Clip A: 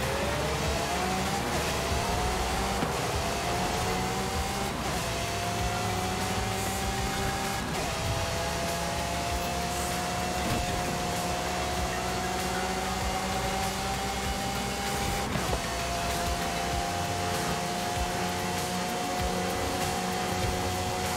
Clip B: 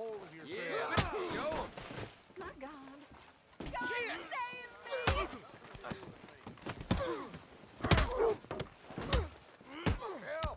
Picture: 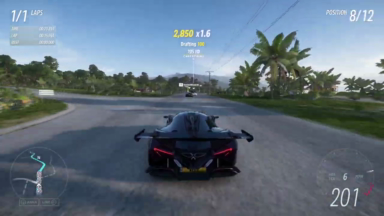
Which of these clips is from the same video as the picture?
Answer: A